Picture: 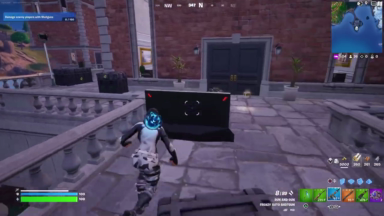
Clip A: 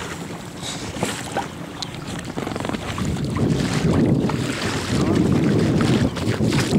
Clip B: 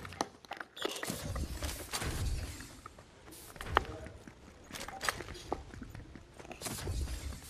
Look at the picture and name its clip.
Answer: B